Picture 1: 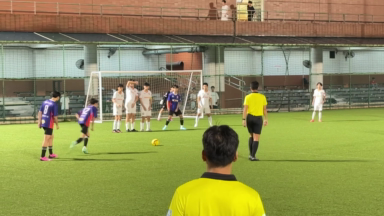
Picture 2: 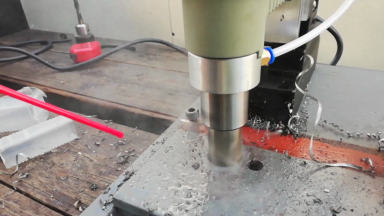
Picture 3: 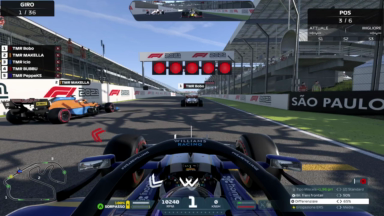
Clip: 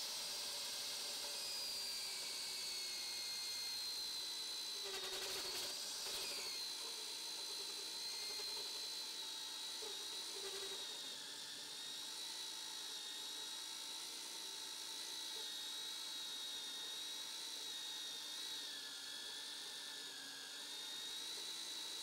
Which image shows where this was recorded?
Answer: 2